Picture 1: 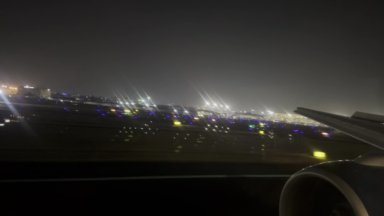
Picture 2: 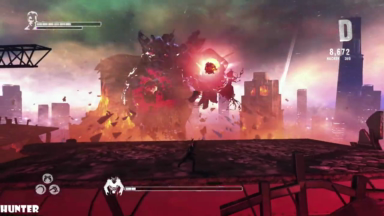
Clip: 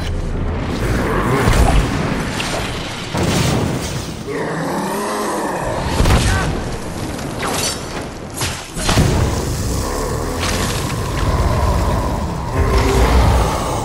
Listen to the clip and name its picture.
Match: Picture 2